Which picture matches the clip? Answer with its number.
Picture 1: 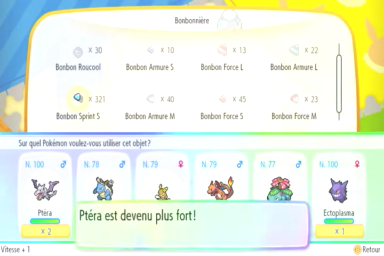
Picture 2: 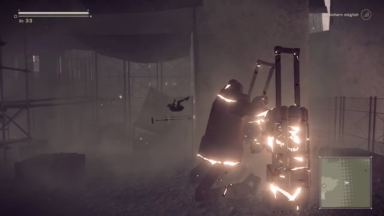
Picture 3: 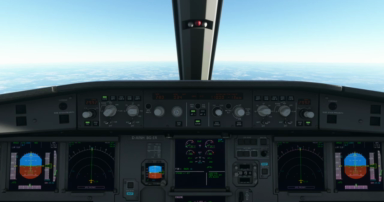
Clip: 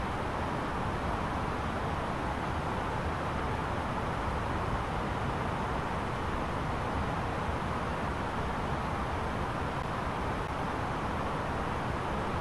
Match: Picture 3